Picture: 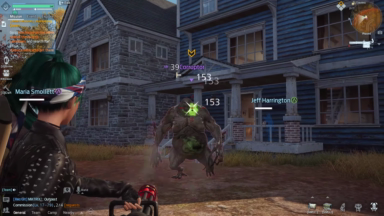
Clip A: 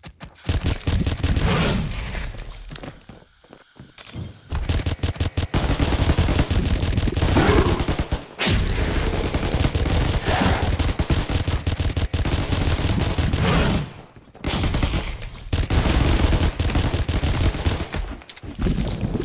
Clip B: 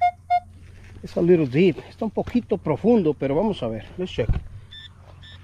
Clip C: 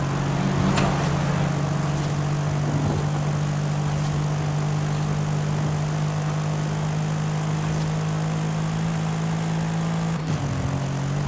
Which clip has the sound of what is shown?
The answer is A